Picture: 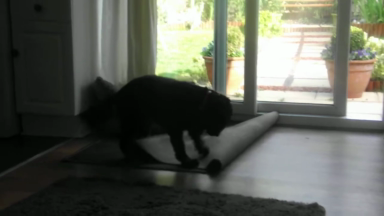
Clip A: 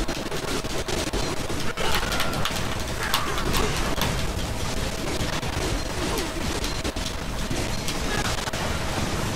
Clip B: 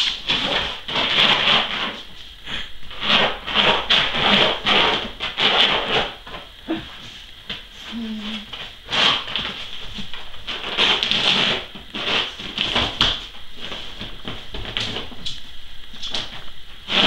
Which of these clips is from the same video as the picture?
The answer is B